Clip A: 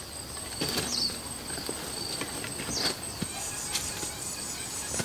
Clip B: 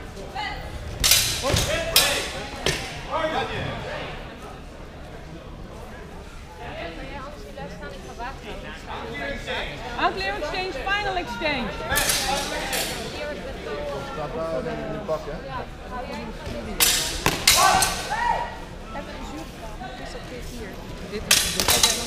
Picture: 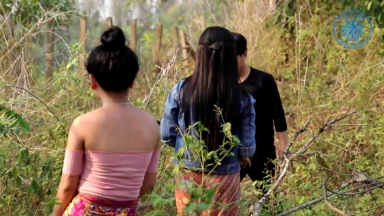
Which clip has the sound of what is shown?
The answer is A